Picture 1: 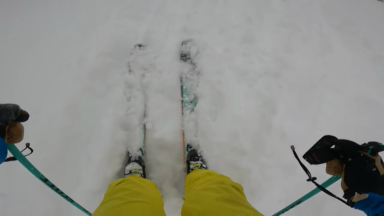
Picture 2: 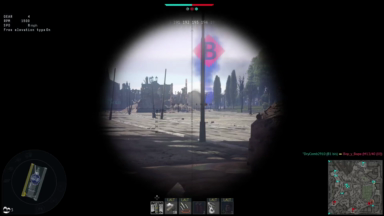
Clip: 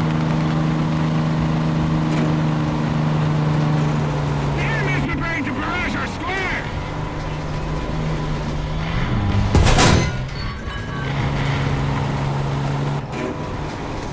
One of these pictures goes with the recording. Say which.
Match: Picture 2